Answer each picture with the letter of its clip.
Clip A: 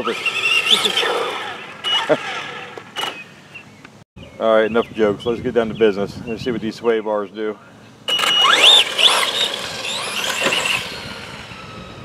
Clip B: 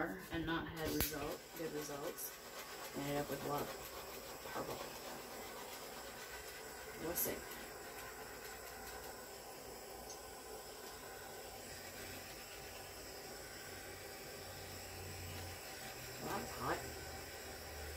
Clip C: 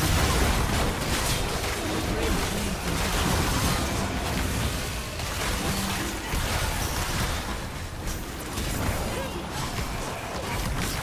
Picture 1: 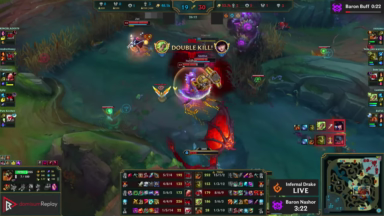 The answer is C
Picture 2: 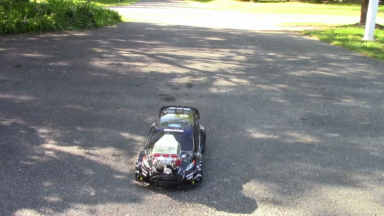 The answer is A